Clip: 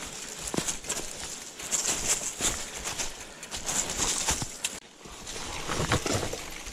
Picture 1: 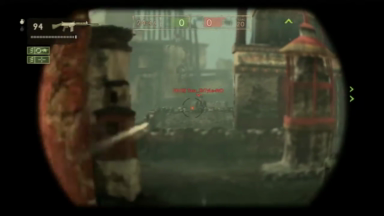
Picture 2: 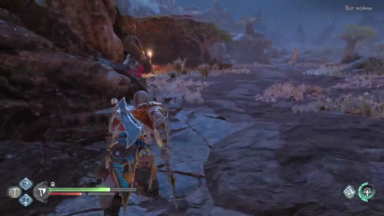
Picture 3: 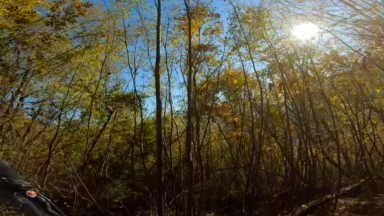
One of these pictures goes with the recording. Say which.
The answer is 3